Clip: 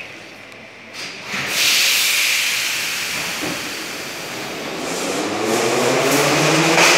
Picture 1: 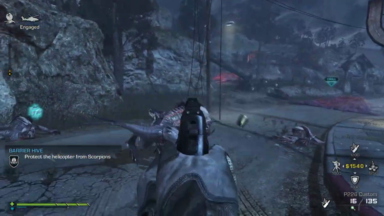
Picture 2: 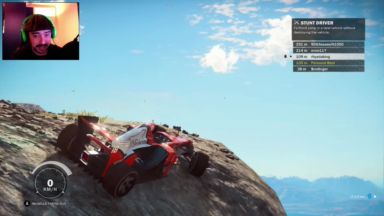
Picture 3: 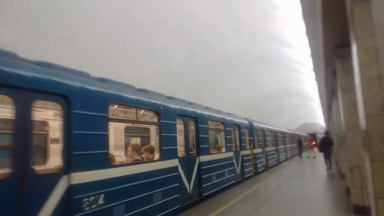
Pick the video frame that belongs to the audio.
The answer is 3